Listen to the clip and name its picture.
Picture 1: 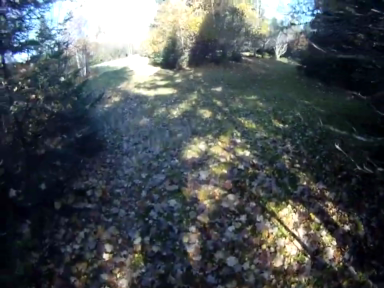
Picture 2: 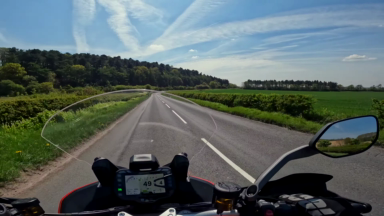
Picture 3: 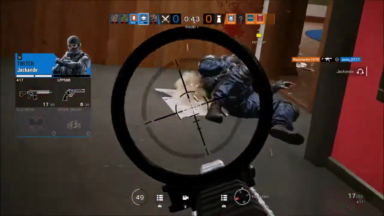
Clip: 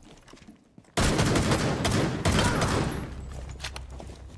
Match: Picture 3